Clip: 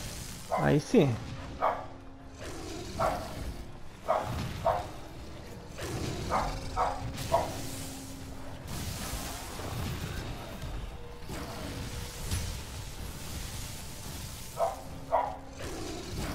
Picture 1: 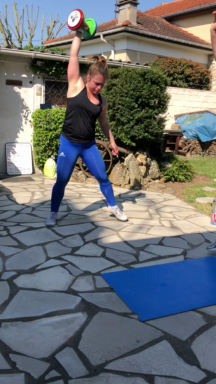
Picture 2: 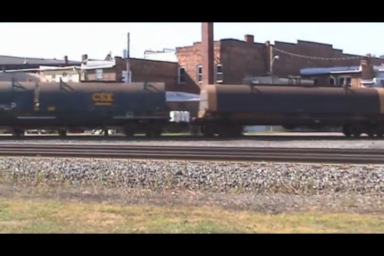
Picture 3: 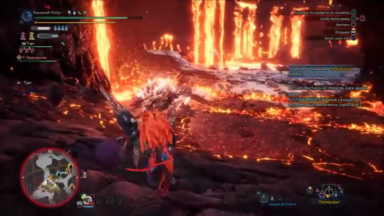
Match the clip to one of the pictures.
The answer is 3